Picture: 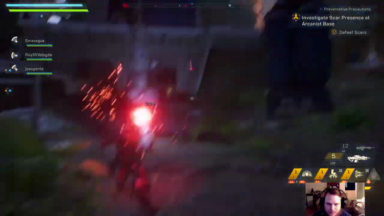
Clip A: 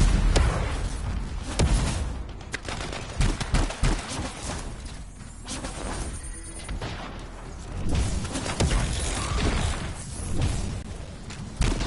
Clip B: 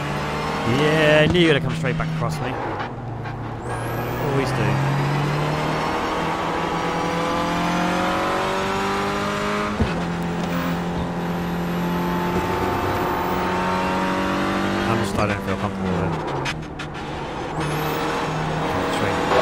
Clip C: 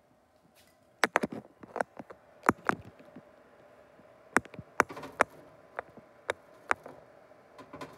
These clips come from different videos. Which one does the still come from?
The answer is A